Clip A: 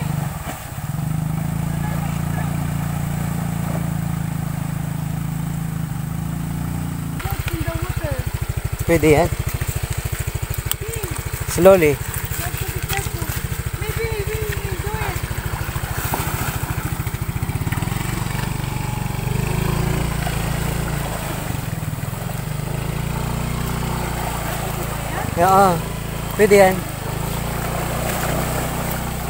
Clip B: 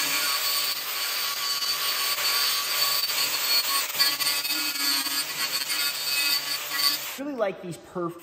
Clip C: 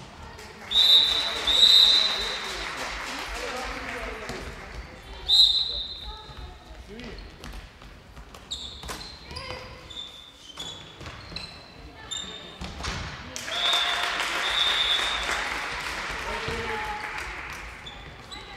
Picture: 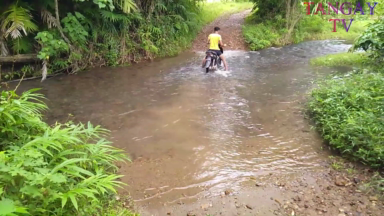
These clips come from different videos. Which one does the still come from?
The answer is A